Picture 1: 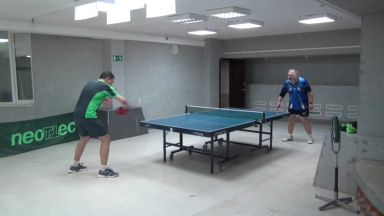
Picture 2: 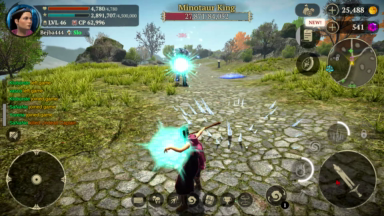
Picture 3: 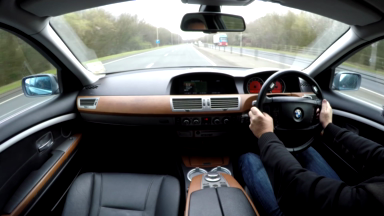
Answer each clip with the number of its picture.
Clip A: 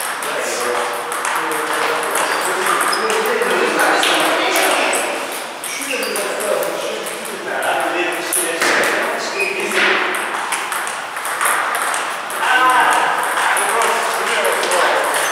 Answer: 1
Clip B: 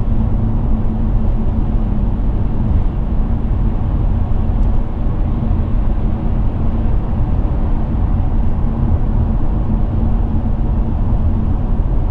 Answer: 3